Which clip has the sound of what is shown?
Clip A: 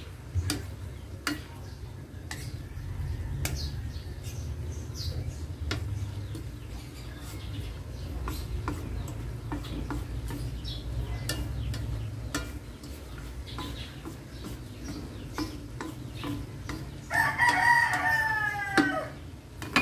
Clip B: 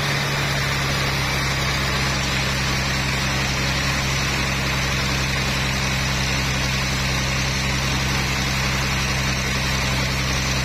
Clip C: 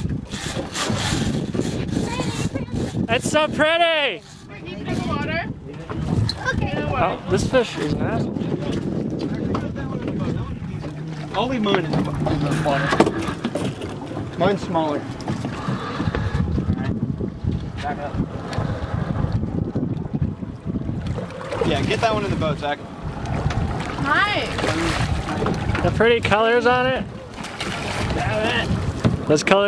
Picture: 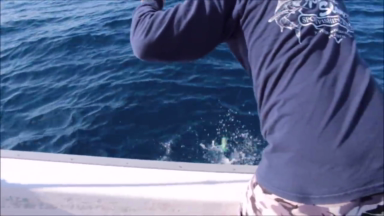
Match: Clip C